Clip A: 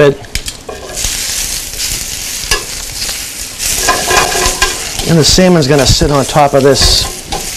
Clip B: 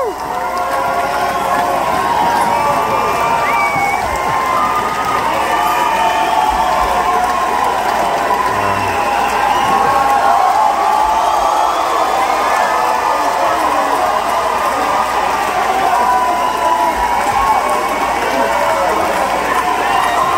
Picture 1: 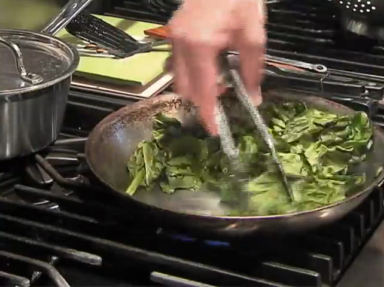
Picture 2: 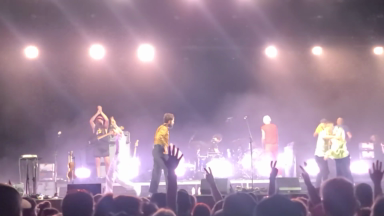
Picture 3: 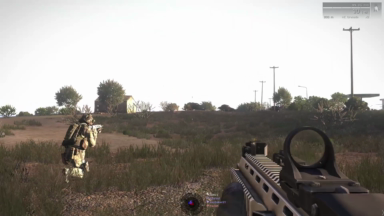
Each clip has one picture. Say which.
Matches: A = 1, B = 2